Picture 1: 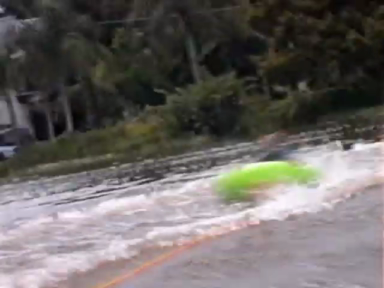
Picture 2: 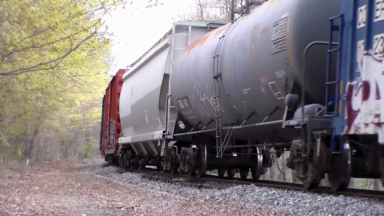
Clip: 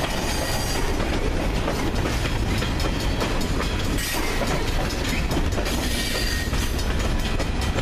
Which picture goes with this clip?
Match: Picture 2